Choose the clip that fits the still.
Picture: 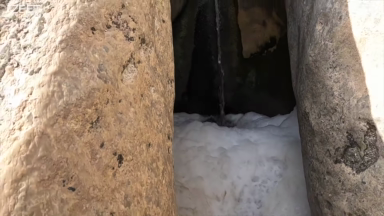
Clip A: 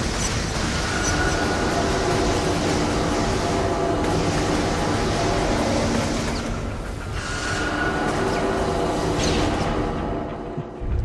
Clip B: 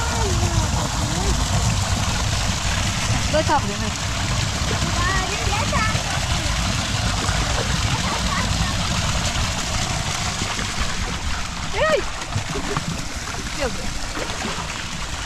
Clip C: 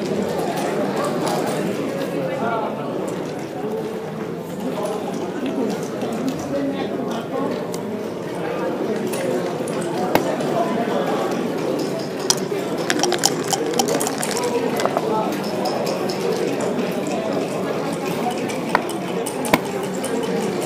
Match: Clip B